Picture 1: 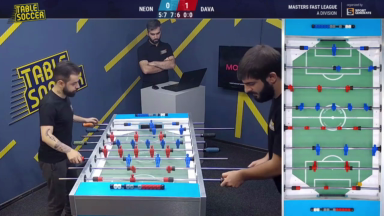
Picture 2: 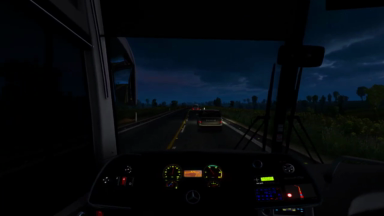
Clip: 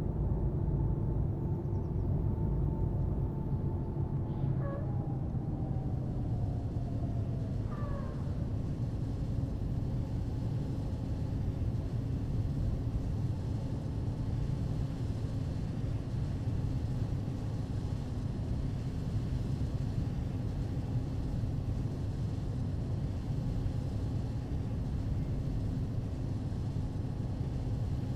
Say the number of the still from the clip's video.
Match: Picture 2